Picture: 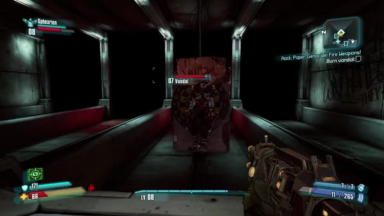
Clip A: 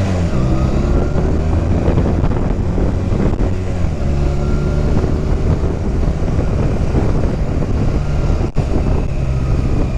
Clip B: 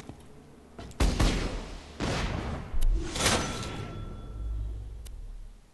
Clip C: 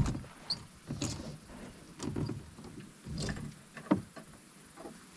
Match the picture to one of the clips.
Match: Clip B